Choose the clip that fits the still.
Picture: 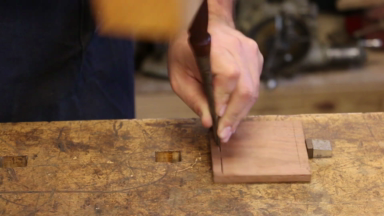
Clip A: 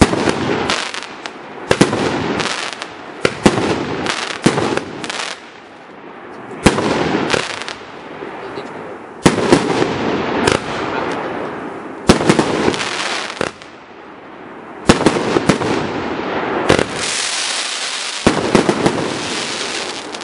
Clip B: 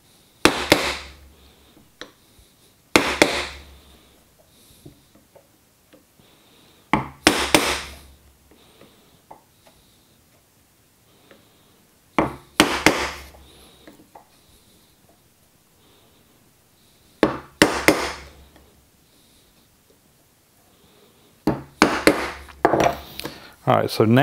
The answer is B